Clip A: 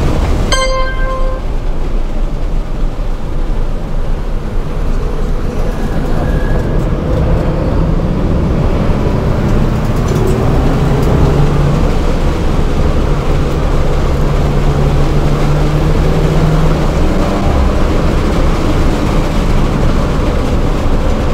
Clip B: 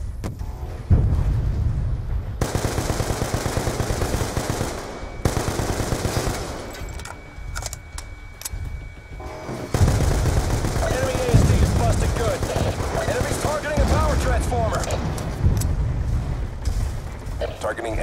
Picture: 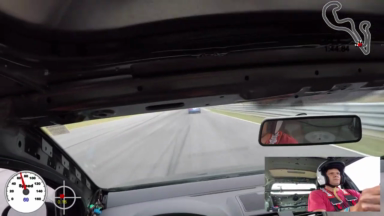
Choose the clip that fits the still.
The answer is A